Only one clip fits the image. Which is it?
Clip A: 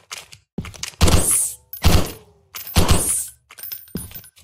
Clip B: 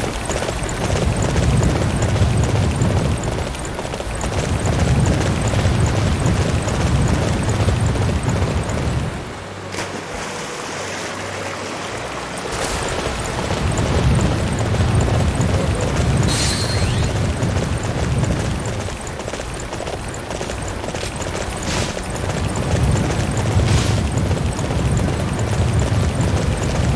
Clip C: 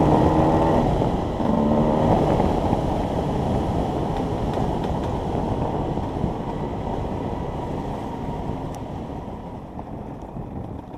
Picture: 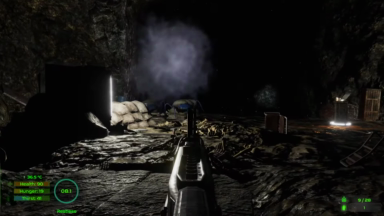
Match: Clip A